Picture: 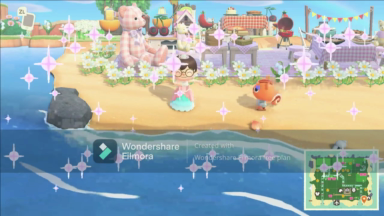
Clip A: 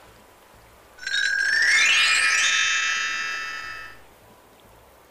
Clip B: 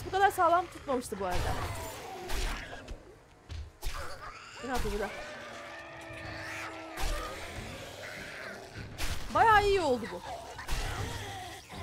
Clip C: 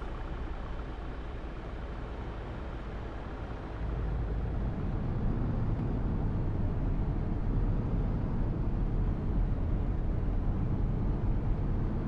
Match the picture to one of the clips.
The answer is A